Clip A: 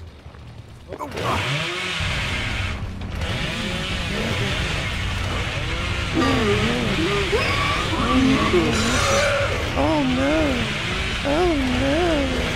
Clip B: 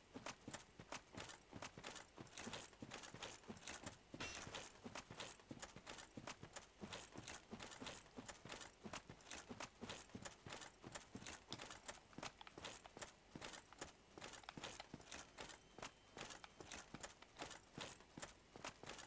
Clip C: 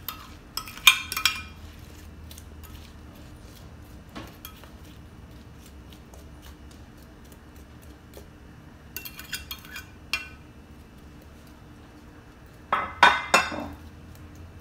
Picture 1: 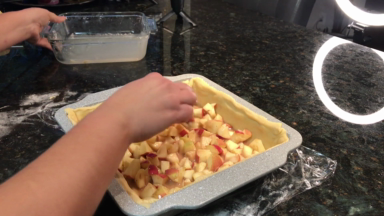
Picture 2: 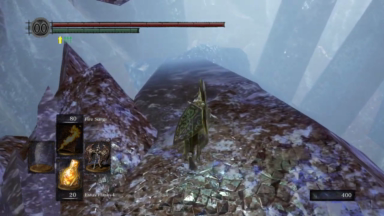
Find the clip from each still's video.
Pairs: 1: C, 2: B